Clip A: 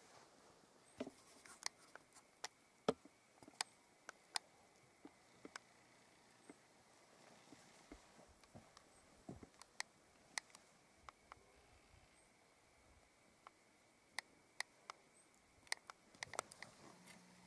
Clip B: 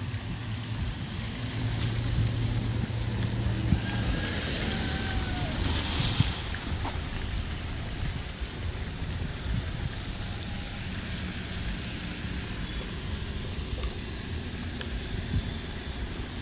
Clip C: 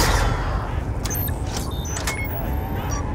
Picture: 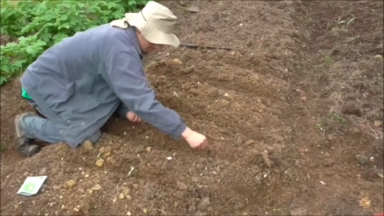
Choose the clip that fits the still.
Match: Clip A